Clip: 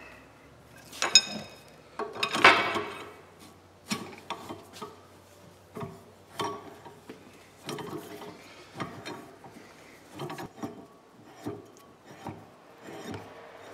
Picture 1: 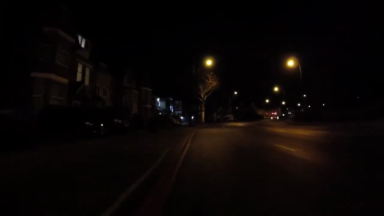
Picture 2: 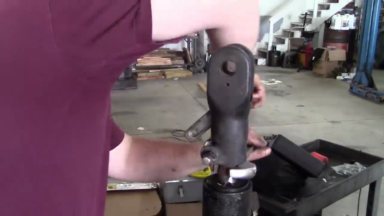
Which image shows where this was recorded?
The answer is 2